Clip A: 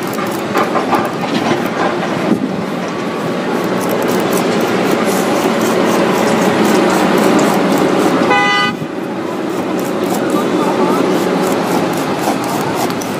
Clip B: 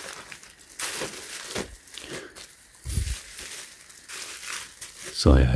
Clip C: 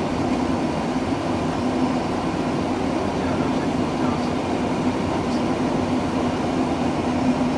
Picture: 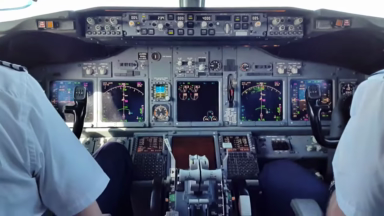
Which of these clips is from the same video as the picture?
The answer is C